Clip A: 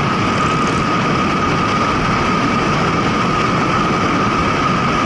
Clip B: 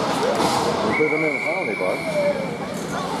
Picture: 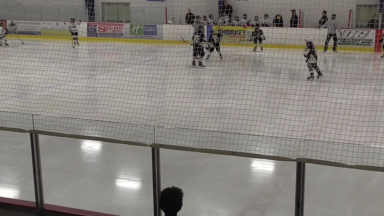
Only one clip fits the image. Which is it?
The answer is B